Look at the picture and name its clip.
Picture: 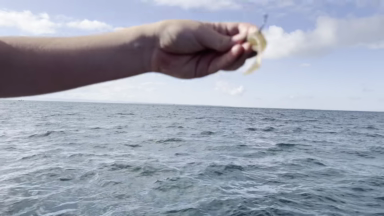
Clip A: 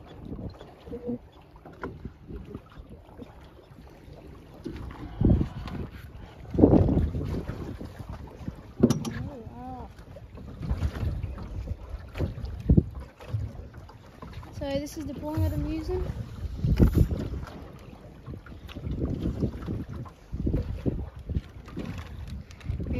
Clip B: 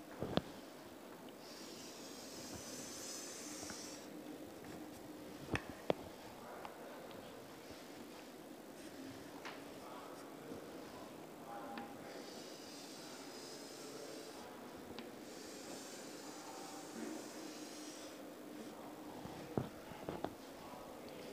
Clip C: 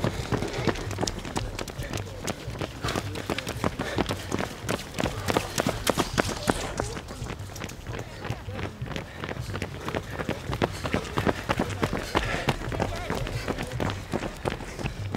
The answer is A